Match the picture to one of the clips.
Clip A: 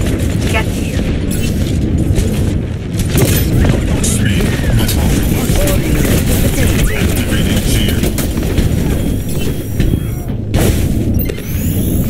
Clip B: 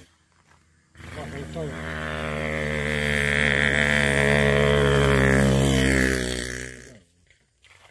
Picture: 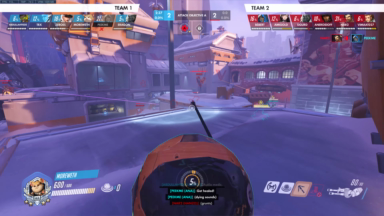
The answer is A